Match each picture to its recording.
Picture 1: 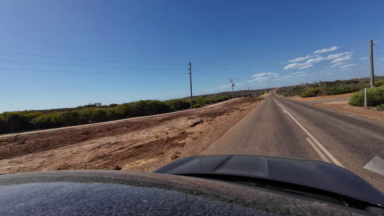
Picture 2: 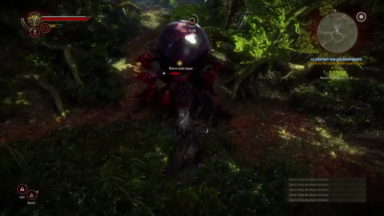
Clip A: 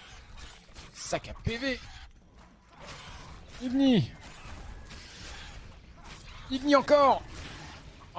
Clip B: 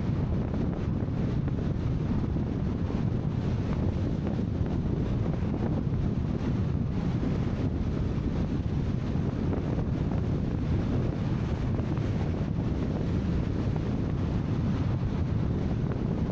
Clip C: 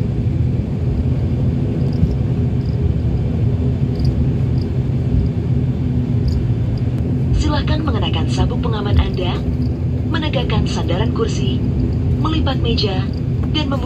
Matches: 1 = B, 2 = A